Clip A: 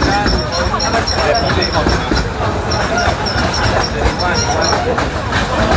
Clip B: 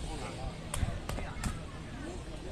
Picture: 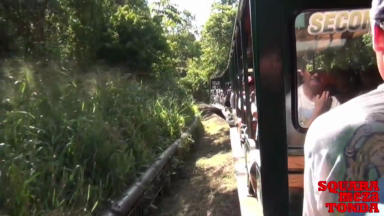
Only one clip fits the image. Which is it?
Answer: A